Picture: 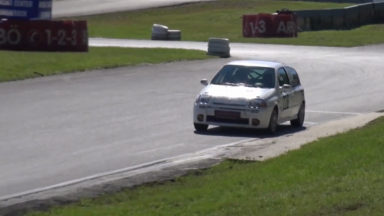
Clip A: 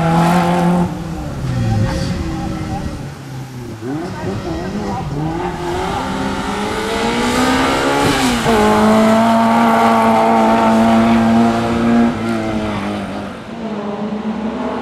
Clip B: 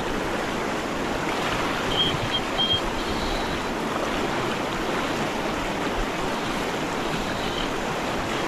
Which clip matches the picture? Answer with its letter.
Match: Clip A